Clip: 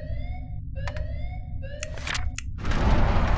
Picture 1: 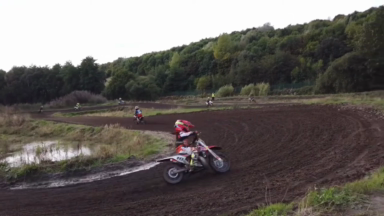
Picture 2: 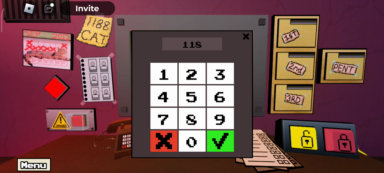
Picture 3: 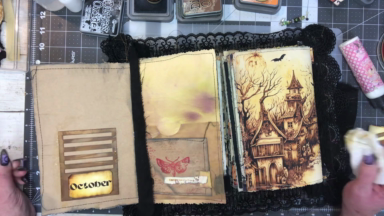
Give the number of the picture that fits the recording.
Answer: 2